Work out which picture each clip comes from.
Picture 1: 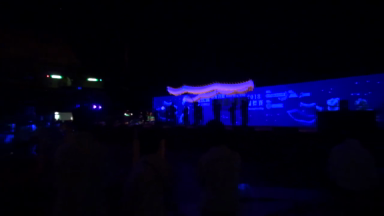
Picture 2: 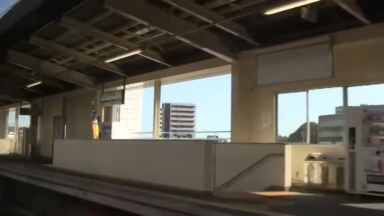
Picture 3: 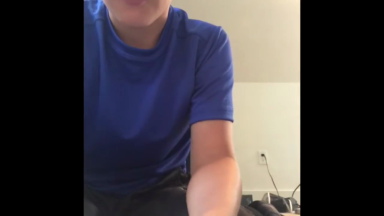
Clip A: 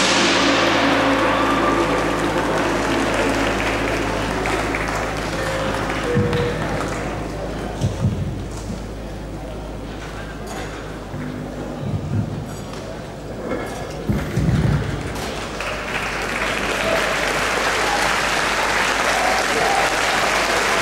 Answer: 1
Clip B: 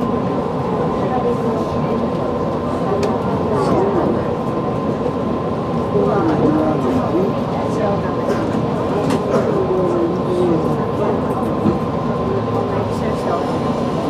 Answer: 2